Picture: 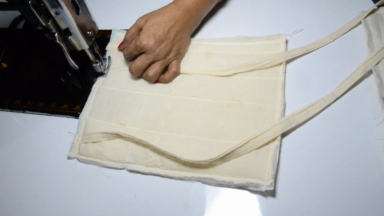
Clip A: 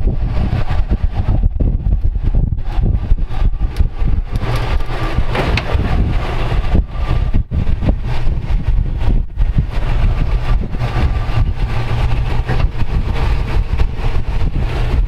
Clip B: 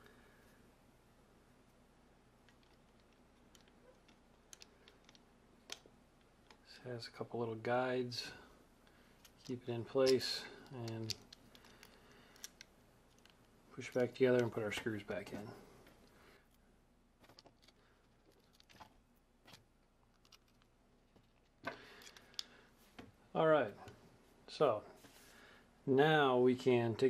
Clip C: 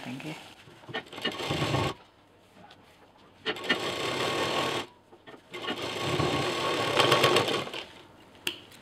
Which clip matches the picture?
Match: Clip C